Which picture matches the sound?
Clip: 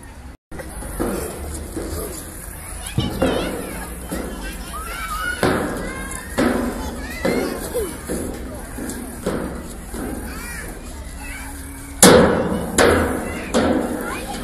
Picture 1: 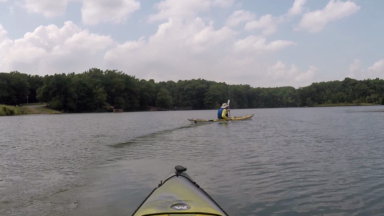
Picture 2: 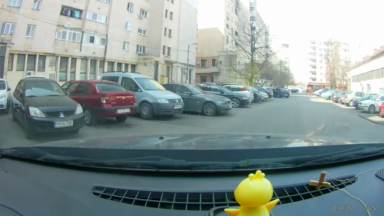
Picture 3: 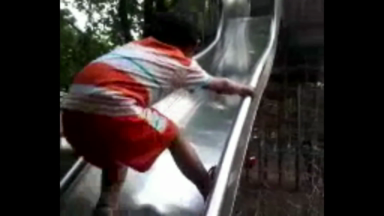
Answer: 3